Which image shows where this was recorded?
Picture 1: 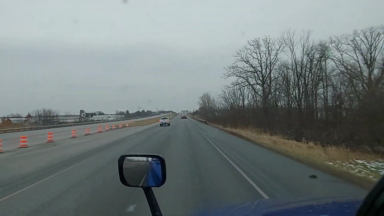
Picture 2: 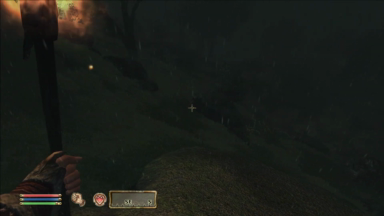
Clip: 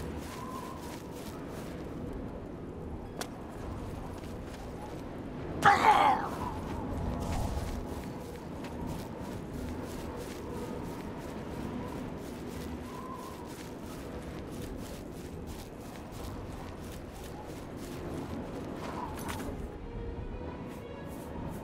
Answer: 2